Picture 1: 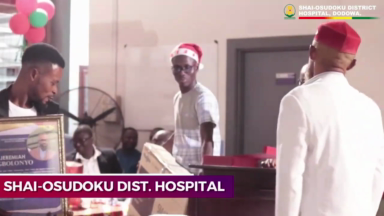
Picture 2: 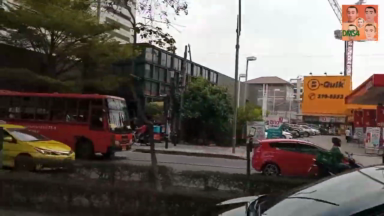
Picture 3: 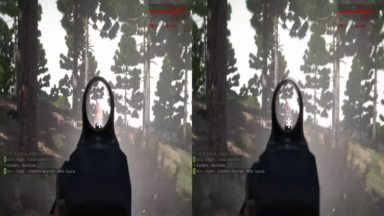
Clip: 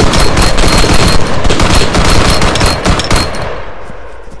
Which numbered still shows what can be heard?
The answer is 3